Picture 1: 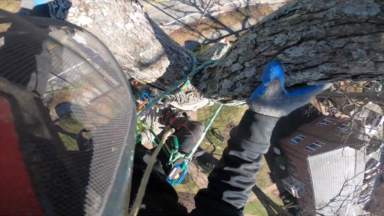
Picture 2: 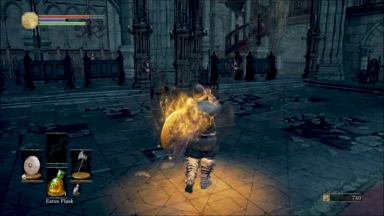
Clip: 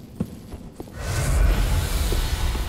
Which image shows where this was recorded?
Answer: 2